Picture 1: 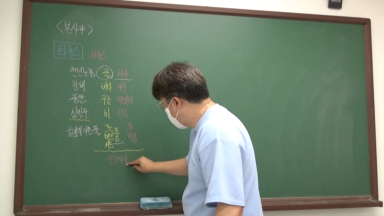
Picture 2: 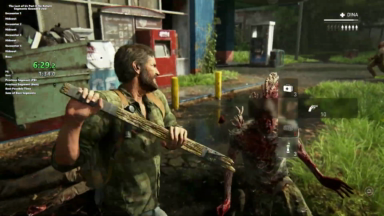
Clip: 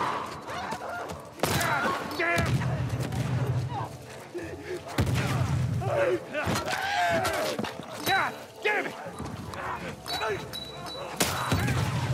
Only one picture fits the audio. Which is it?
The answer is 2